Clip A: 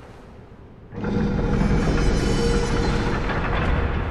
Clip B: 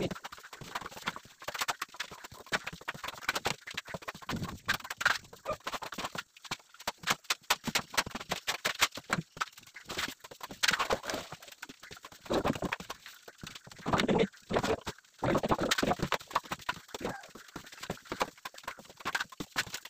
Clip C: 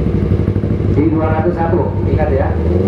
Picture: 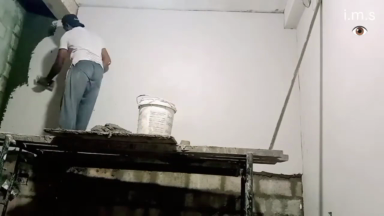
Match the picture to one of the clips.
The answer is B